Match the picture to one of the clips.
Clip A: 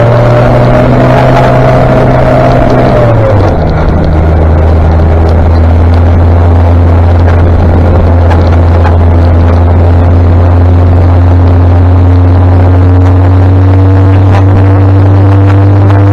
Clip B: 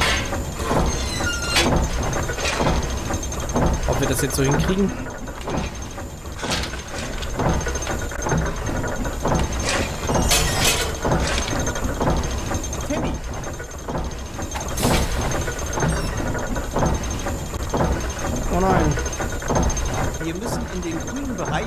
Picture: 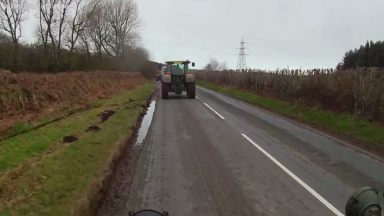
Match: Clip A